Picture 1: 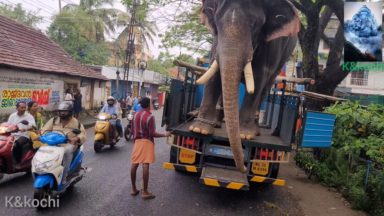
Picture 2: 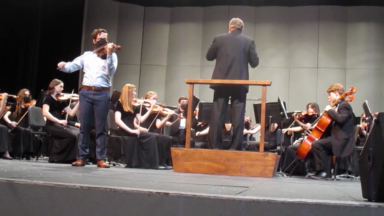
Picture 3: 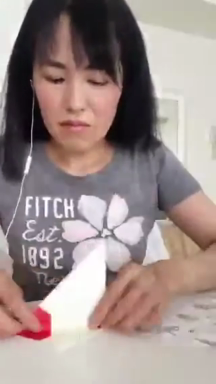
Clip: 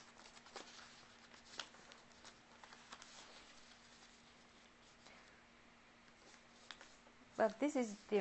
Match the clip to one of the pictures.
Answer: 3